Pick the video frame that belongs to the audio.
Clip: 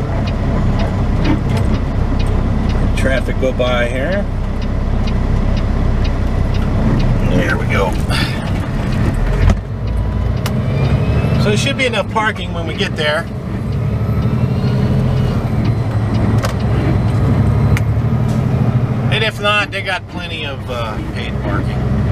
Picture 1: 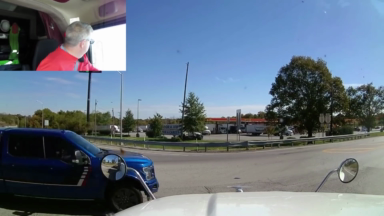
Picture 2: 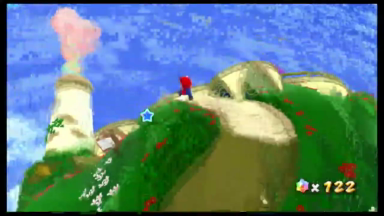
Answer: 1